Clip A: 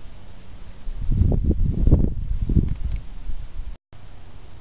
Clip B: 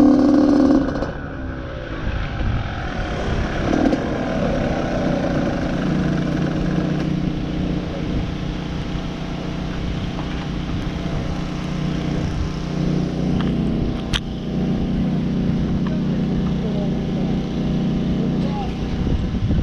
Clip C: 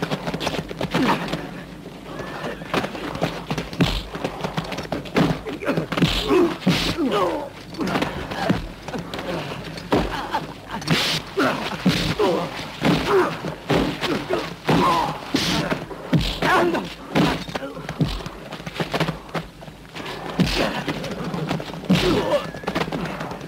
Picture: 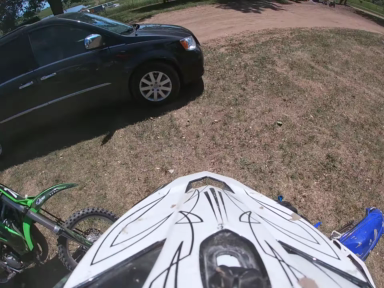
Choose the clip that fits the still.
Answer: B